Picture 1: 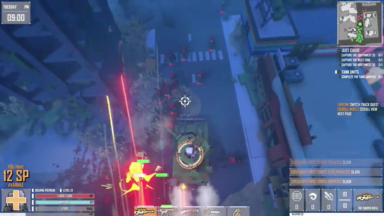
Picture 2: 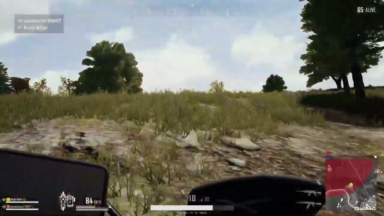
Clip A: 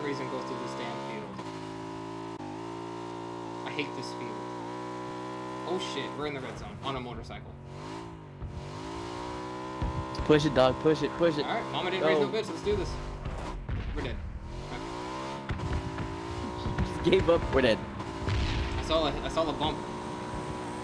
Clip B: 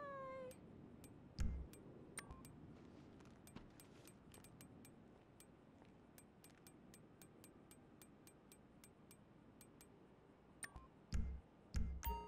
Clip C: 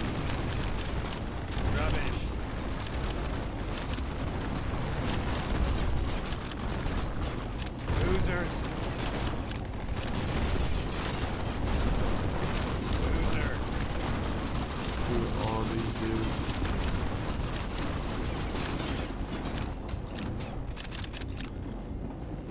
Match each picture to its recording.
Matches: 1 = C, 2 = A